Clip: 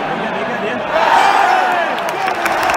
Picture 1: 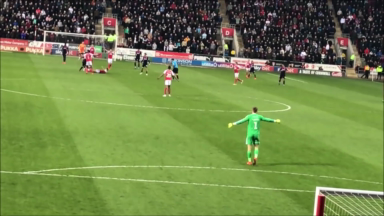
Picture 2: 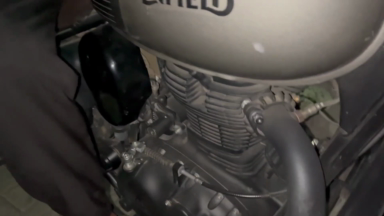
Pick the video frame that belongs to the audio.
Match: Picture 1